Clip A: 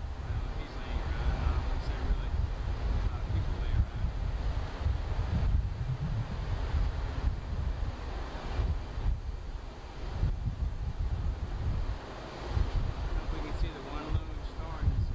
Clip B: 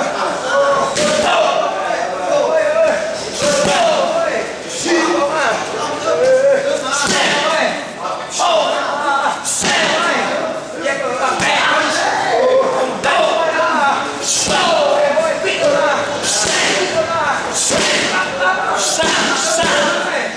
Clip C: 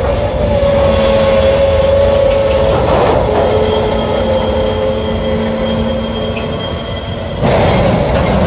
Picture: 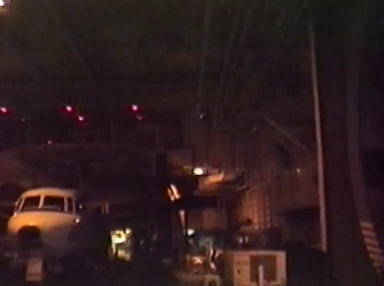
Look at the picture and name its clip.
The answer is A